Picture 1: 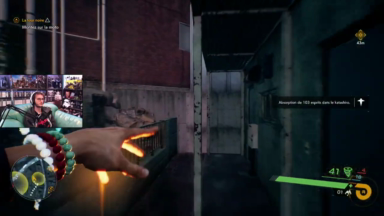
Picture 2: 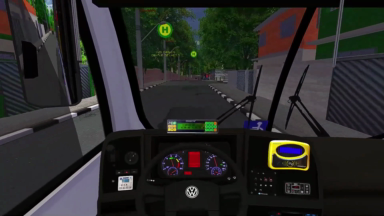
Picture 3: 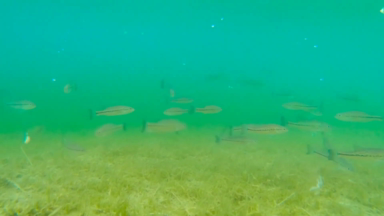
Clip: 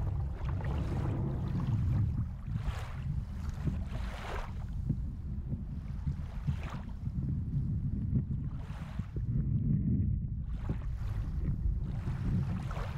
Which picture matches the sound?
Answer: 3